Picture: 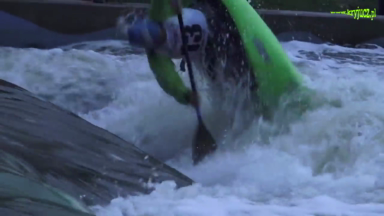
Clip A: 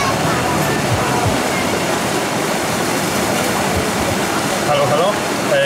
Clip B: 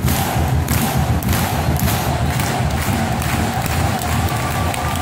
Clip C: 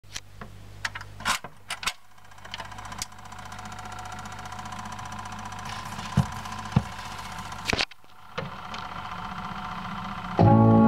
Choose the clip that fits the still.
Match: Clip A